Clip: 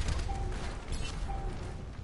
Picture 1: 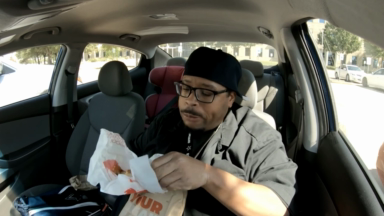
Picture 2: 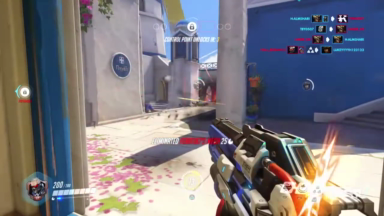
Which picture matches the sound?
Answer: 2